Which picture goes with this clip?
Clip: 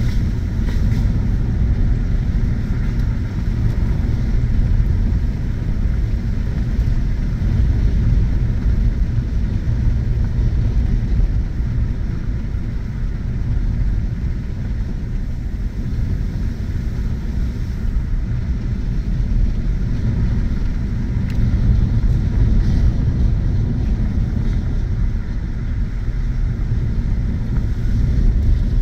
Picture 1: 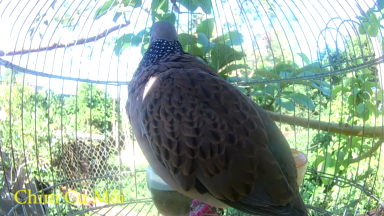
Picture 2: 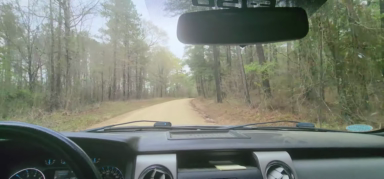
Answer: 2